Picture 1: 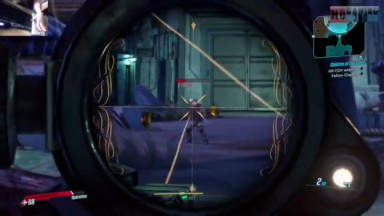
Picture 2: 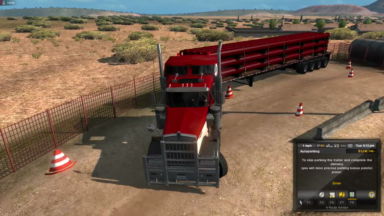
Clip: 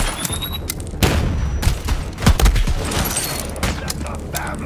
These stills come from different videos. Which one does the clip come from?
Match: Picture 1